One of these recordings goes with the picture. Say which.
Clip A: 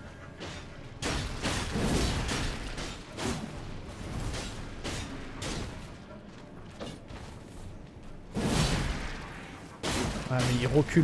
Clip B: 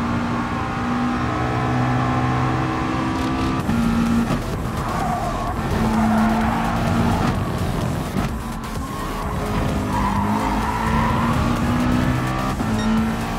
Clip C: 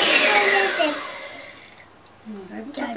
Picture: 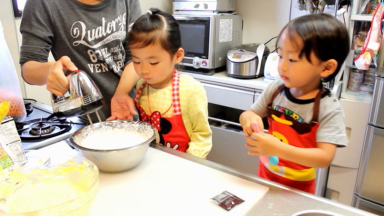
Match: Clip C